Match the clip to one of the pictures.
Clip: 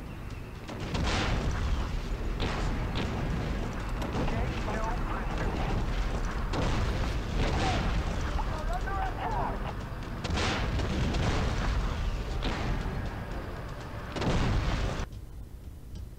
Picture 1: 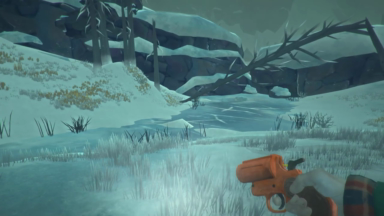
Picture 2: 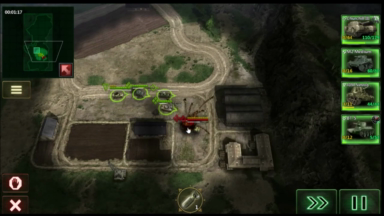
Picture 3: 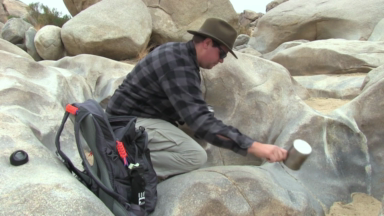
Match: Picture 2